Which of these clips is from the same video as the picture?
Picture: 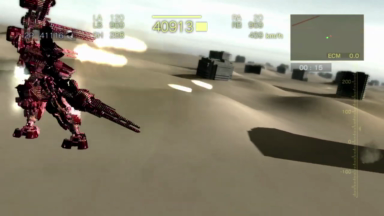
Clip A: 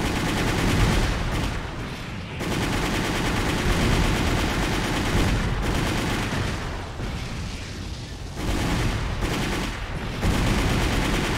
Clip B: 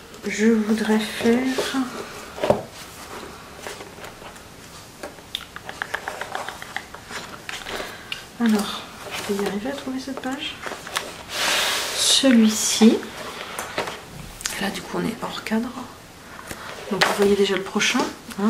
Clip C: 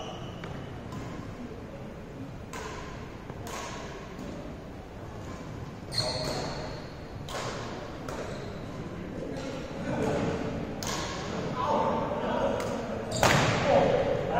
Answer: A